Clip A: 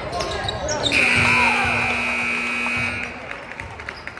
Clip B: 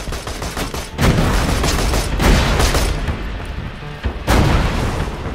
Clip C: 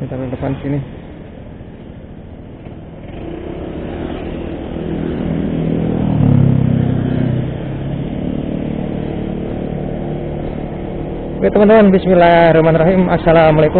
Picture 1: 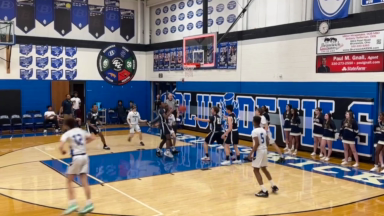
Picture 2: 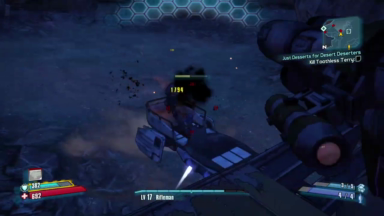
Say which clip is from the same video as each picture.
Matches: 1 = A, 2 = B